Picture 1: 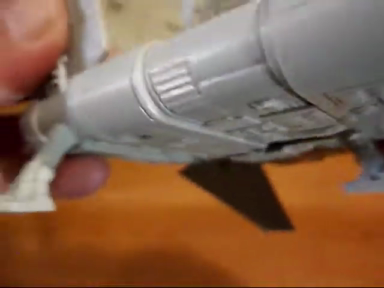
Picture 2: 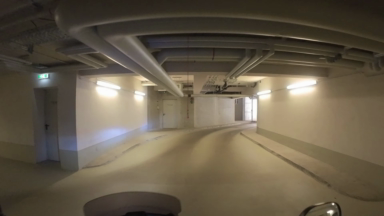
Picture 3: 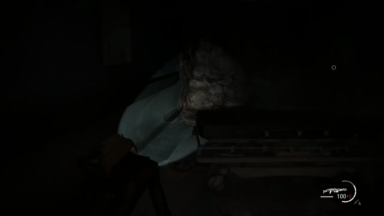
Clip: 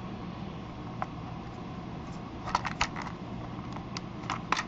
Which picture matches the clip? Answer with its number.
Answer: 1